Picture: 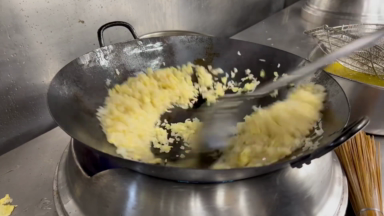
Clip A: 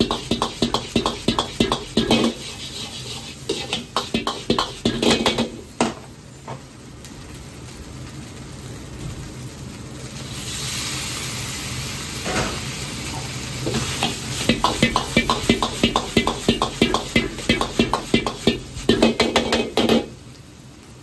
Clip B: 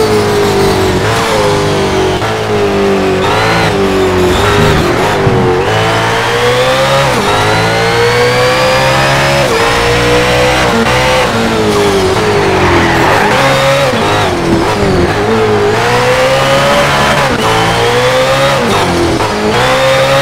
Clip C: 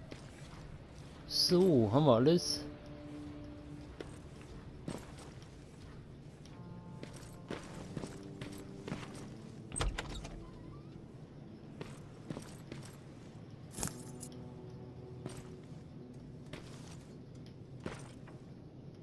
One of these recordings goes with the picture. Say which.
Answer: A